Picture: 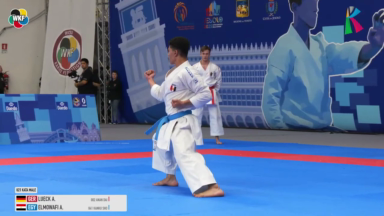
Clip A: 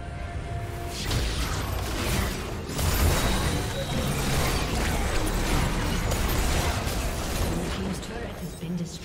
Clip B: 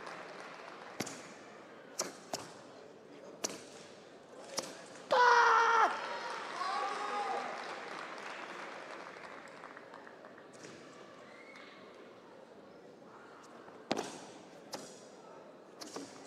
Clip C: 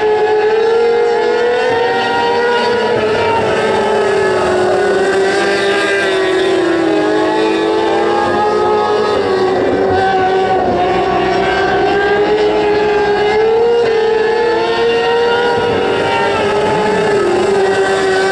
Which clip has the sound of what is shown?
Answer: B